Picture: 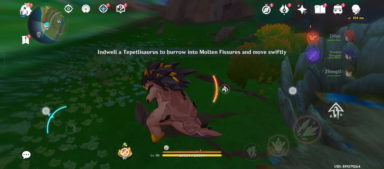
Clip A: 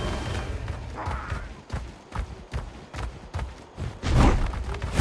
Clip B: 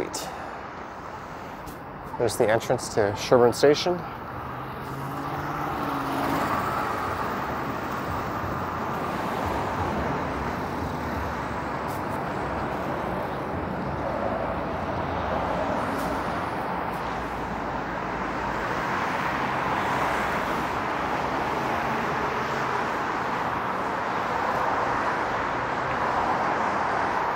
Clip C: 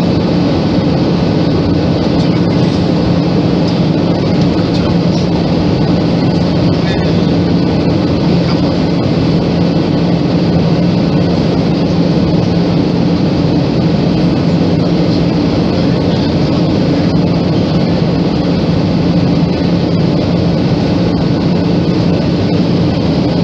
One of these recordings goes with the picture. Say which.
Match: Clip A